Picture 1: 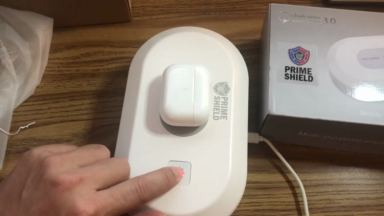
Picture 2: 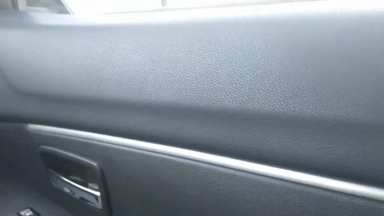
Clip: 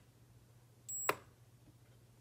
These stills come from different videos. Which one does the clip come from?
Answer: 1